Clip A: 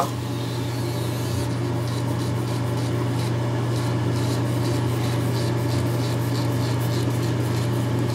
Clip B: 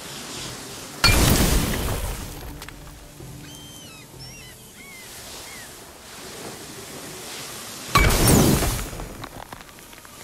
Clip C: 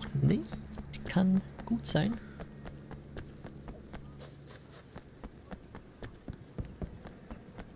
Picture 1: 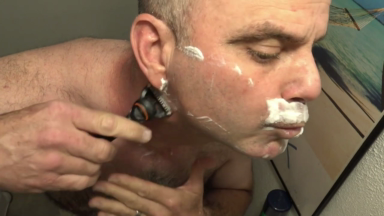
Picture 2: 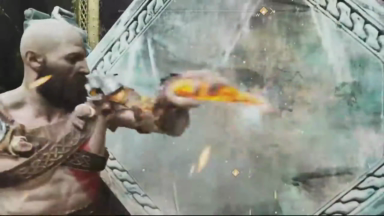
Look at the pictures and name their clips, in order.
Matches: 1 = A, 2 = B